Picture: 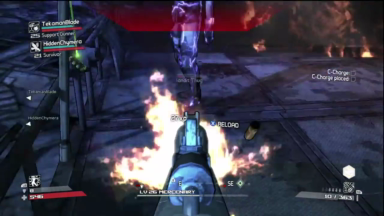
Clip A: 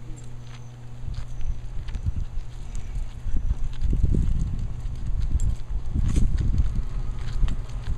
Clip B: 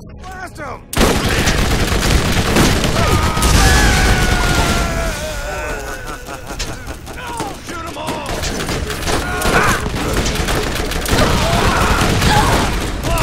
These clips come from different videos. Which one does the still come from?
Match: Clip B